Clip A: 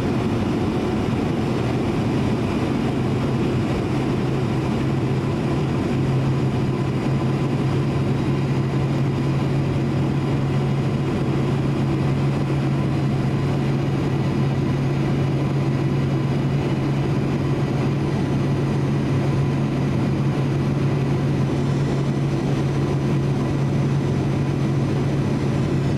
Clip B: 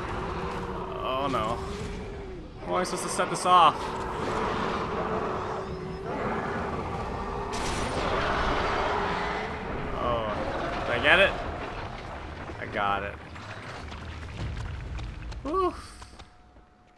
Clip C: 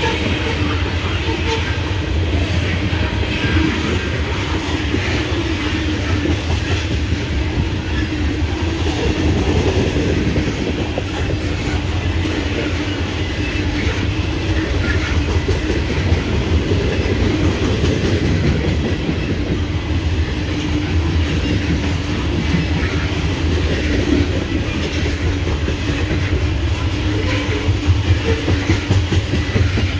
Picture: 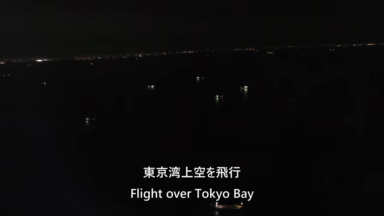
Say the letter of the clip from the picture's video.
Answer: A